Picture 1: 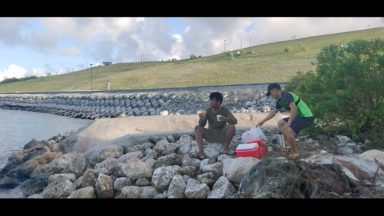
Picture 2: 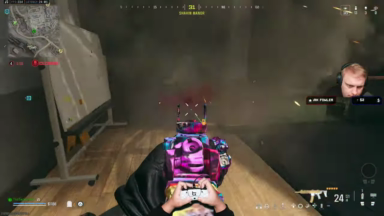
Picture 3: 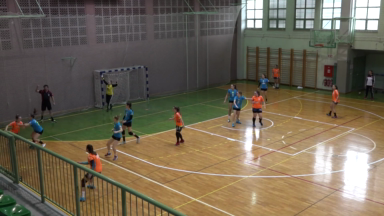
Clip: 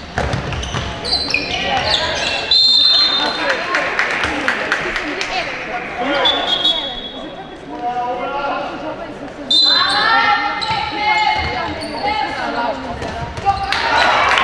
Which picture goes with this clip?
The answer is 3